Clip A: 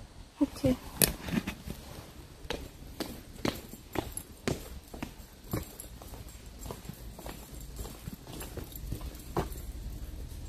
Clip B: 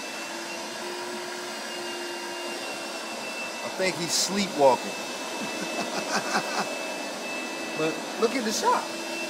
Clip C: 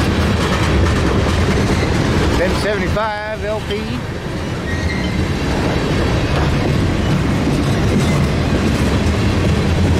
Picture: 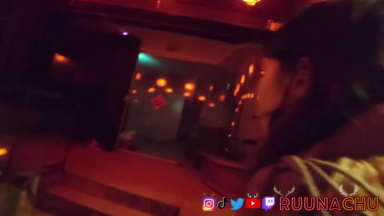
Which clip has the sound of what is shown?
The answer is A